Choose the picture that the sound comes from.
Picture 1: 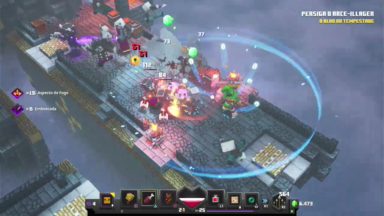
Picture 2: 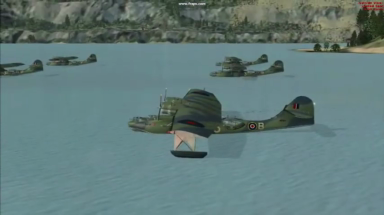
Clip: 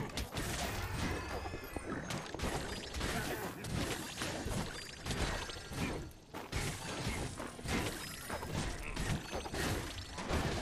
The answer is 1